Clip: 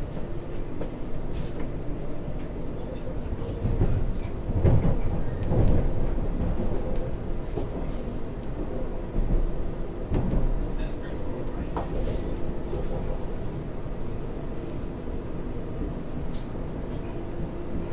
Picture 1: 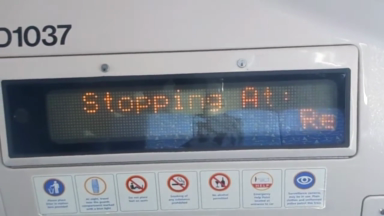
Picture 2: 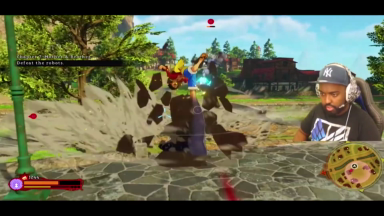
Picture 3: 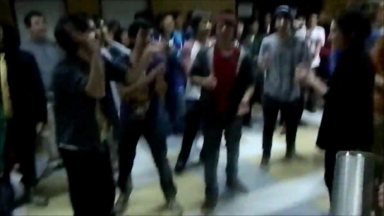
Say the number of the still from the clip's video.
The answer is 1